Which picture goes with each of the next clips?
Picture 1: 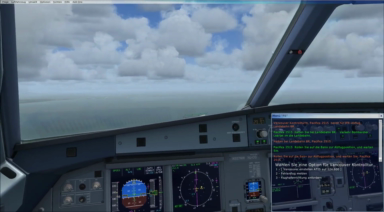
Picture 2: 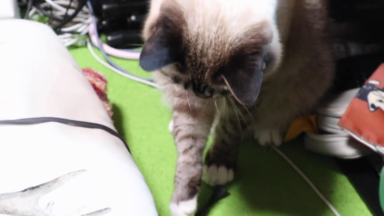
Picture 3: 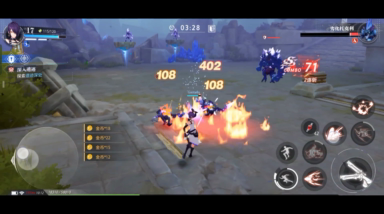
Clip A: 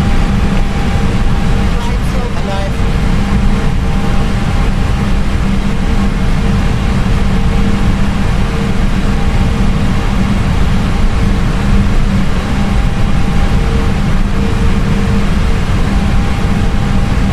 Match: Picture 1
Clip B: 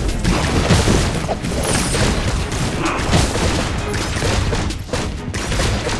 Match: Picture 3